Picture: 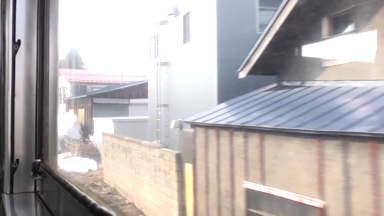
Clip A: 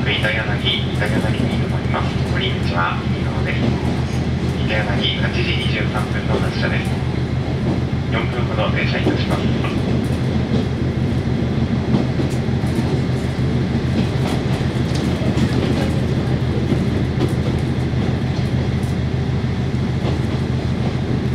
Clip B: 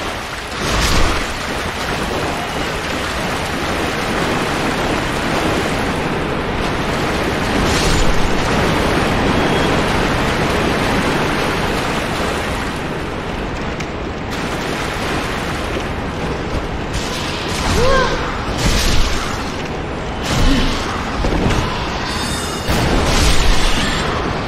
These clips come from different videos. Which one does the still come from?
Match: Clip A